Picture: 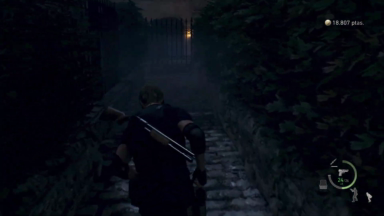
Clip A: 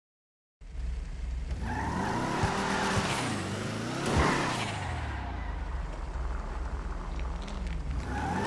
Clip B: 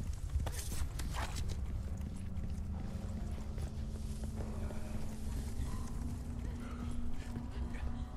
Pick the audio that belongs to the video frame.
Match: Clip B